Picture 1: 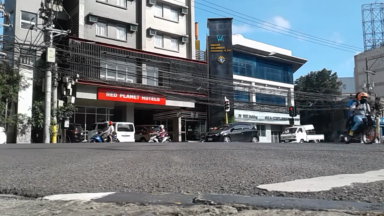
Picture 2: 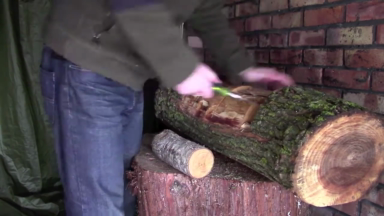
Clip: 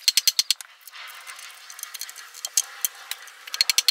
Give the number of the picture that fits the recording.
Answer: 2